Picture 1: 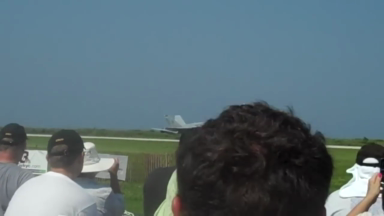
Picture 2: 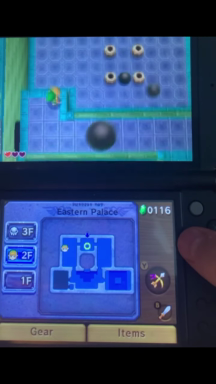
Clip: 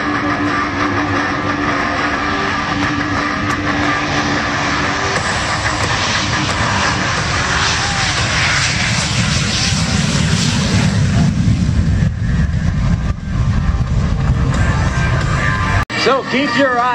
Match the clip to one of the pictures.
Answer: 1